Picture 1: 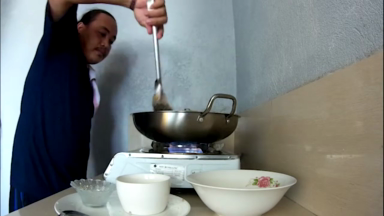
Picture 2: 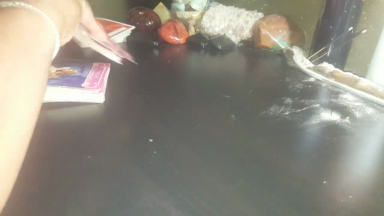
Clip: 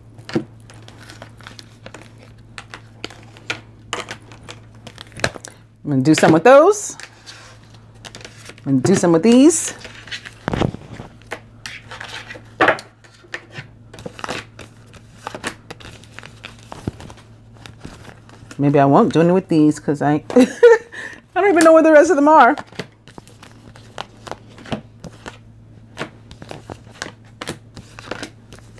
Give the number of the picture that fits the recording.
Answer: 2